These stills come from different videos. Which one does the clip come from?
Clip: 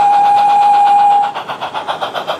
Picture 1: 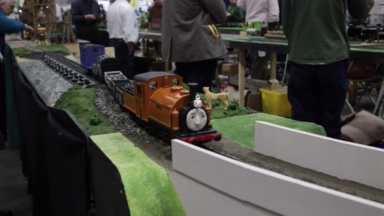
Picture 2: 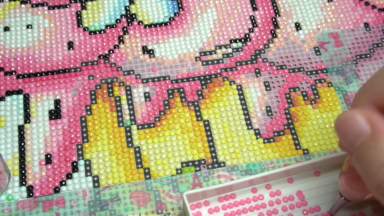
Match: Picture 1